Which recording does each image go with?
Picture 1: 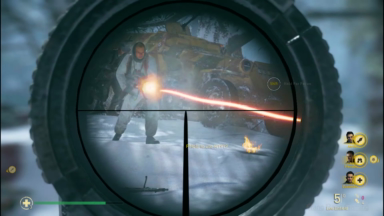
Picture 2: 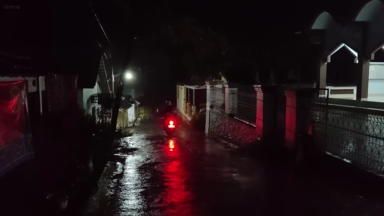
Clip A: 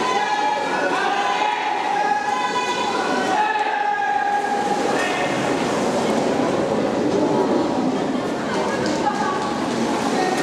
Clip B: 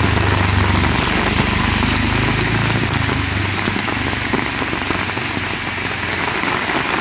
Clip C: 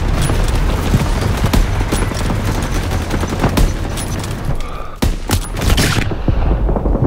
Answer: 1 C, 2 B